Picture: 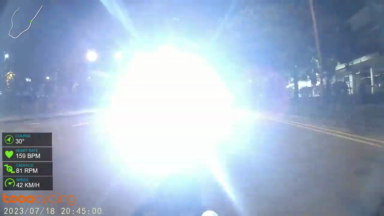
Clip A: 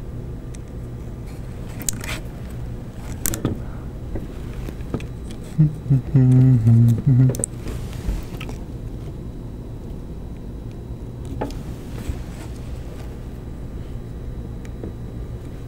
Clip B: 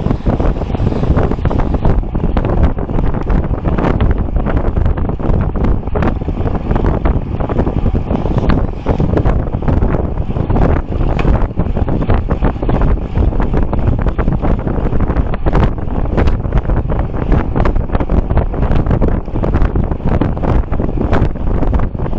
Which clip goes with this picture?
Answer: B